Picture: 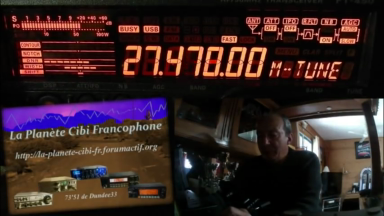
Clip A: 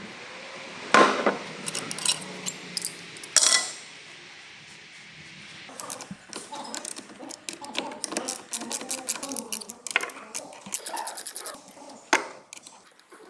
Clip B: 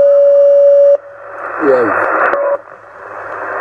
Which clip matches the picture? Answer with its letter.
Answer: B